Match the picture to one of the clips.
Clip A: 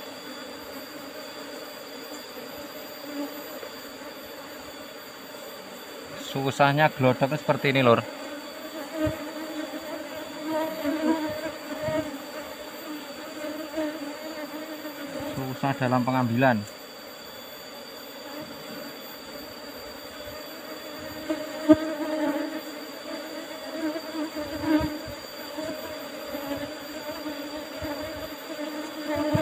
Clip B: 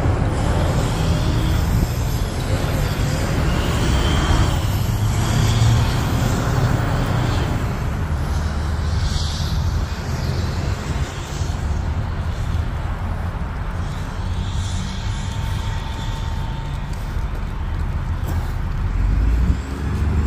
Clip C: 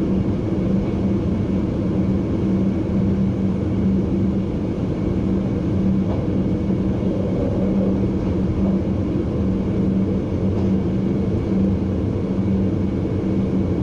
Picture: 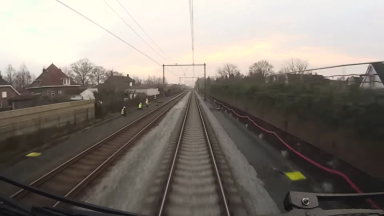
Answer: C